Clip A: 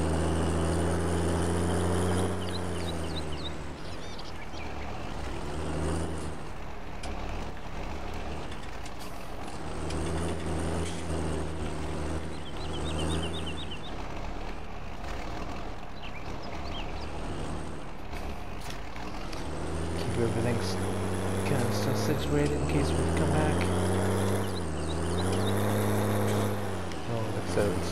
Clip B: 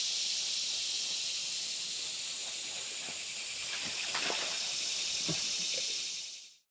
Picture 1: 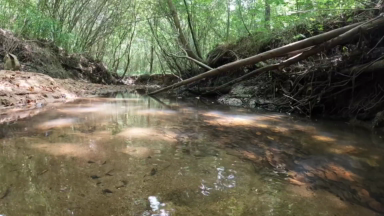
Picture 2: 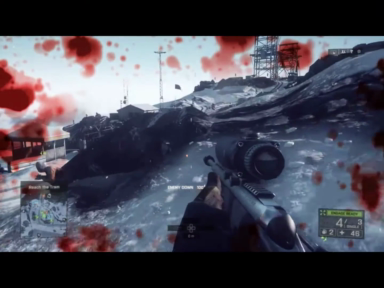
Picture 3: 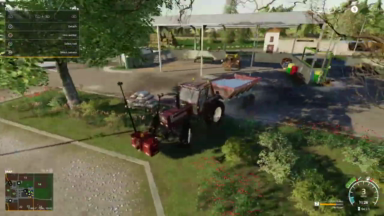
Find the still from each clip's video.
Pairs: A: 3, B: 1